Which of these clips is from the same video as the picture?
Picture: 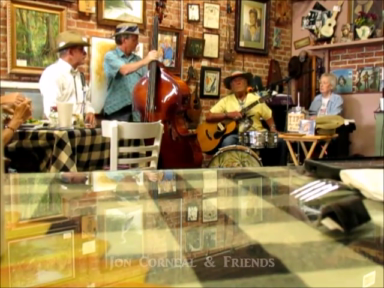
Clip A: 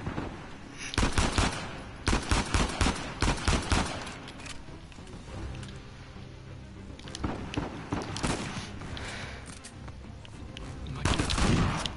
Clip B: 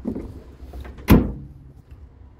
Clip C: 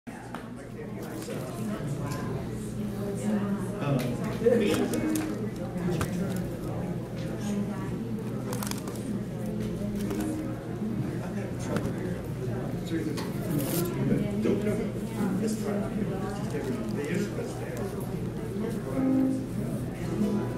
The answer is C